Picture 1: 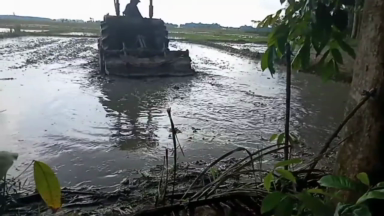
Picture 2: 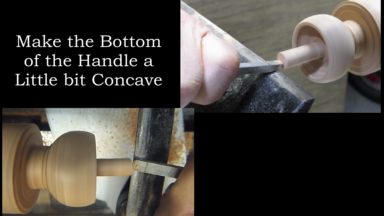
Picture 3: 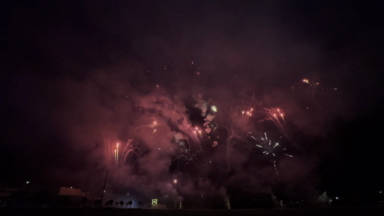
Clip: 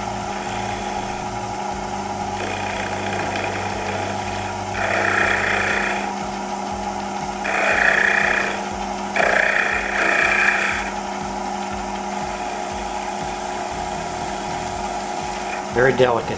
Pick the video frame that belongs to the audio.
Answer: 2